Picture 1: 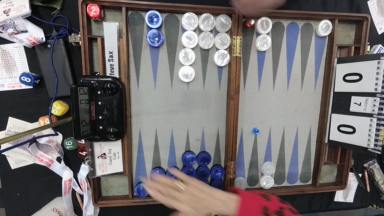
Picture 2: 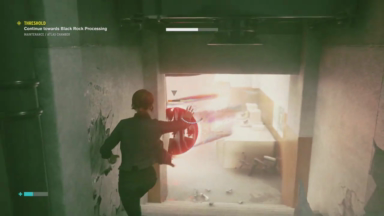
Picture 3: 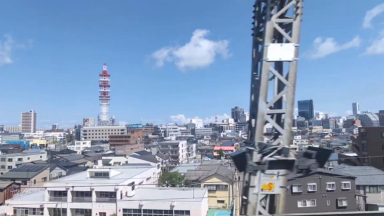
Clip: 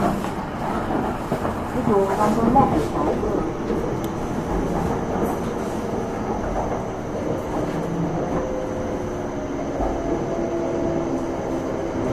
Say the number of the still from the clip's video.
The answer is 3